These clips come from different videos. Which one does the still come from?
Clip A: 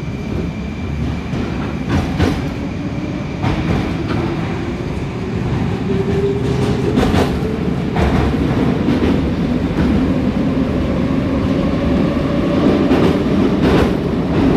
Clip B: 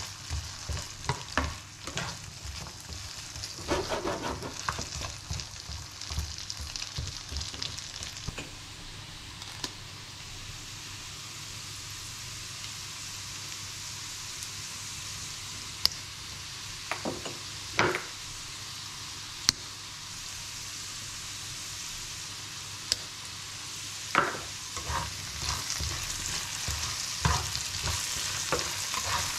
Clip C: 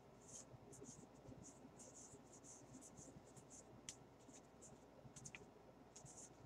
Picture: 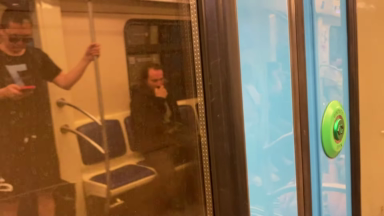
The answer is A